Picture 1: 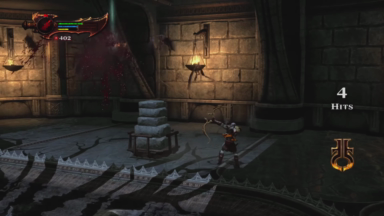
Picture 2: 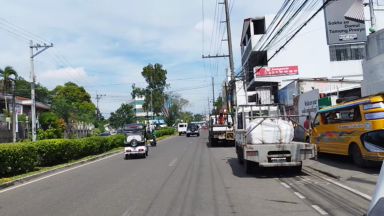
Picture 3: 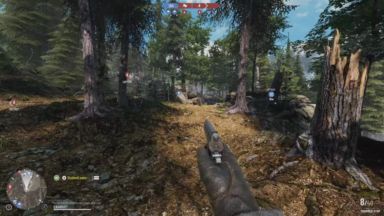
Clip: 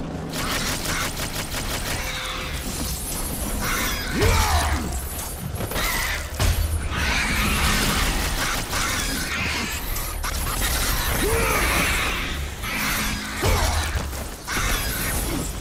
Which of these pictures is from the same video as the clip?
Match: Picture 1